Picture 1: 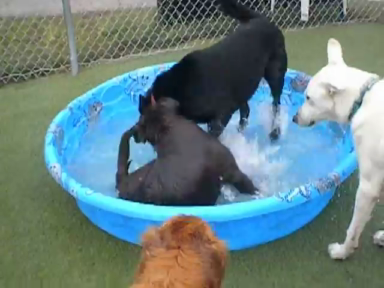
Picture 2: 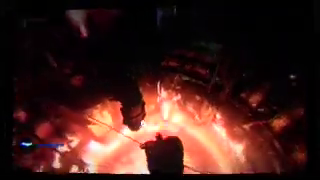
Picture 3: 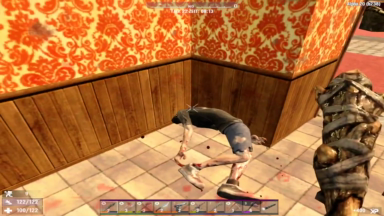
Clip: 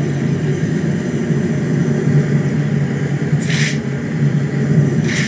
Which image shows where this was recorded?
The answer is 2